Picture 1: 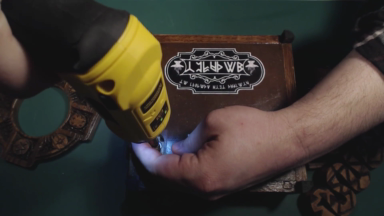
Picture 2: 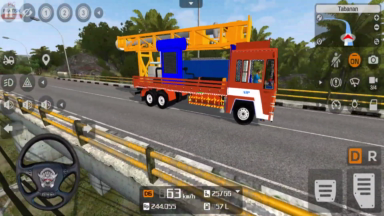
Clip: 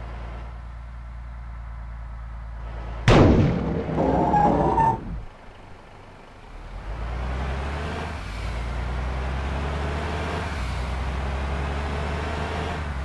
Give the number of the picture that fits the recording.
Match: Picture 2